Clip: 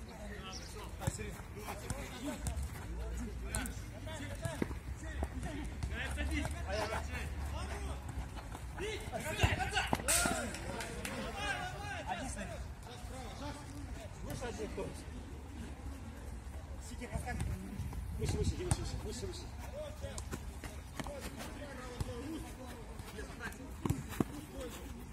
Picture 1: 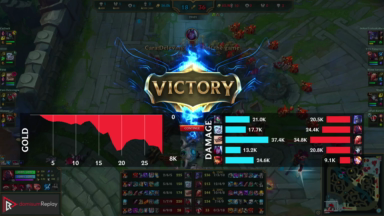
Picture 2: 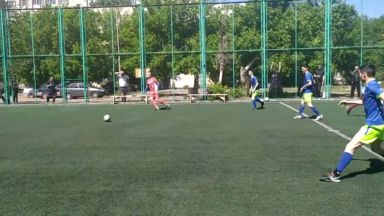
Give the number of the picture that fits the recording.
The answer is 2